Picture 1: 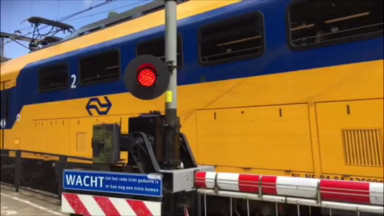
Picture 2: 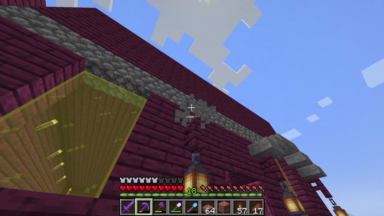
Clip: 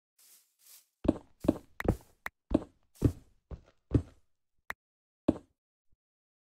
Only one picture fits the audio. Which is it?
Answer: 2